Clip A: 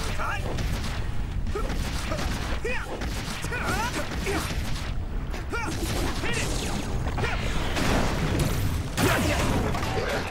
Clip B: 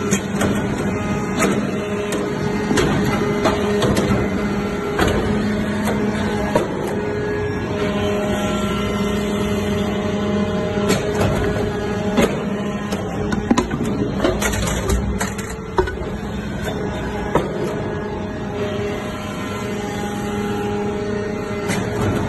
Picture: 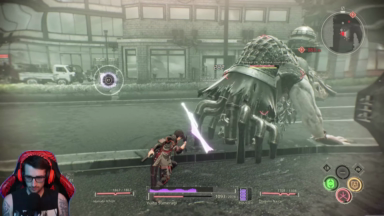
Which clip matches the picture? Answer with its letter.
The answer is A